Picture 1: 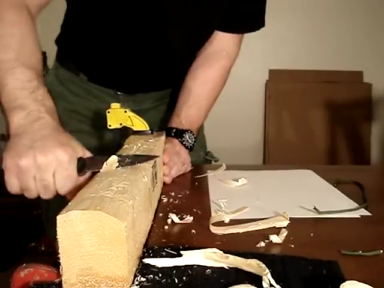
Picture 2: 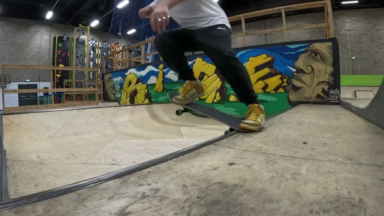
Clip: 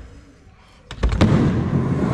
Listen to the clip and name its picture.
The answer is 2